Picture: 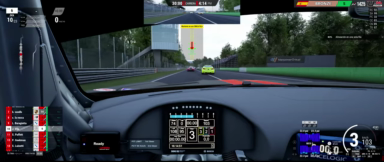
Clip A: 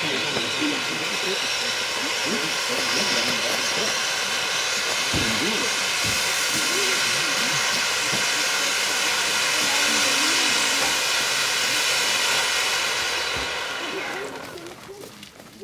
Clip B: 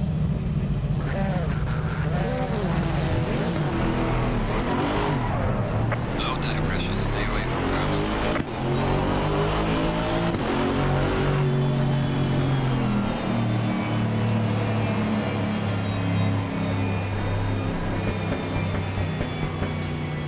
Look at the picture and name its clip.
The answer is B